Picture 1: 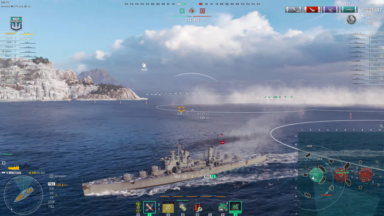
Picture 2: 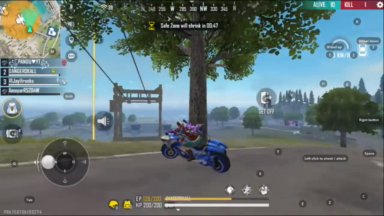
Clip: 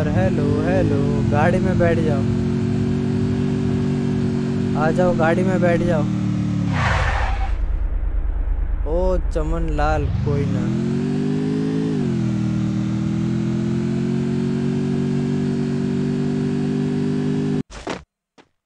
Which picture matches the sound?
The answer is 2